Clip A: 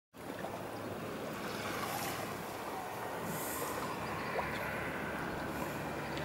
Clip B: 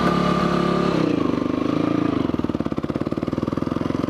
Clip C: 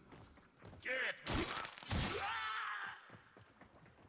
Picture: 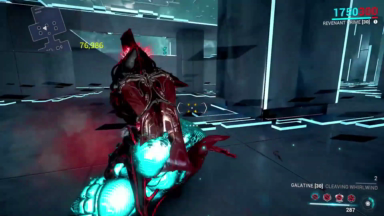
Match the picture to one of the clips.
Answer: C